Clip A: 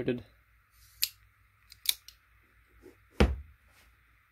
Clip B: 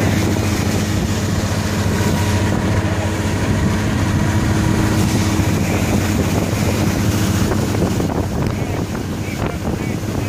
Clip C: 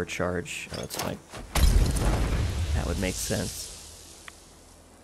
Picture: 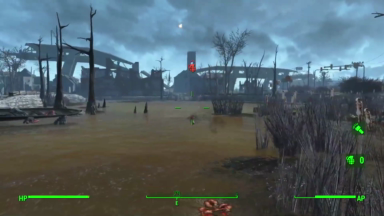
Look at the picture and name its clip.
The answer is C